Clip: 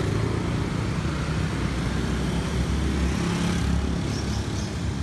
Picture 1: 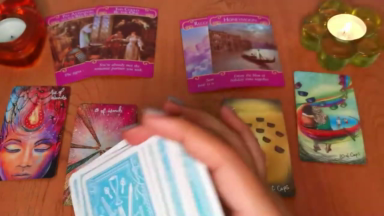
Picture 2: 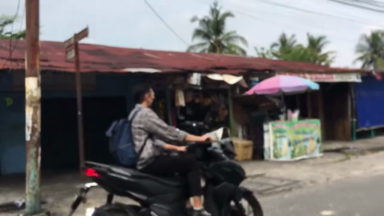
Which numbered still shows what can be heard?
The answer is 2